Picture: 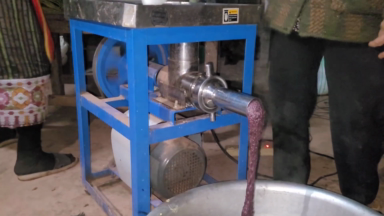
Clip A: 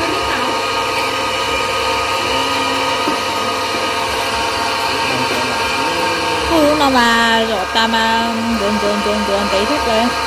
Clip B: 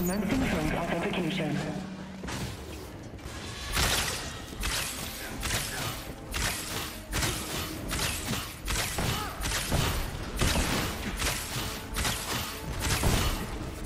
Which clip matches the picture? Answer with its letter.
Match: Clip A